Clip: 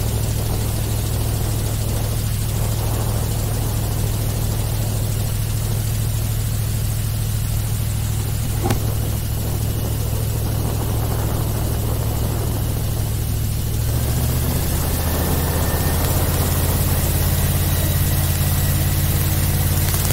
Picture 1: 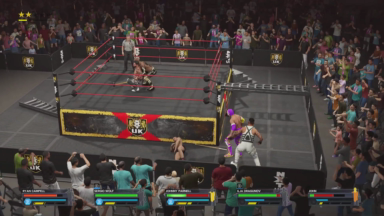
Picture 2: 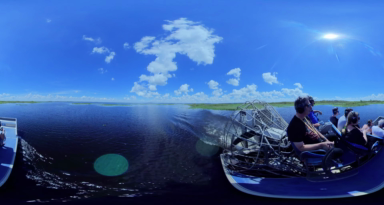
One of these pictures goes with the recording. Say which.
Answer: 2